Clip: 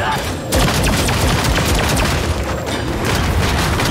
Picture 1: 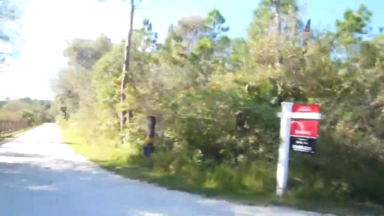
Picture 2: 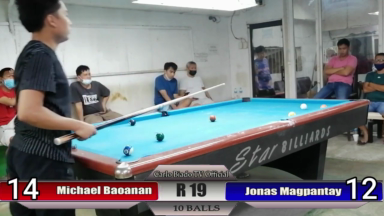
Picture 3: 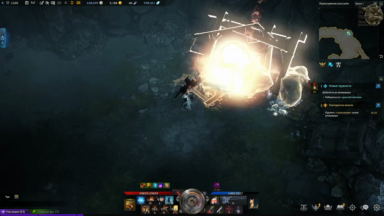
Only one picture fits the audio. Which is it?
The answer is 3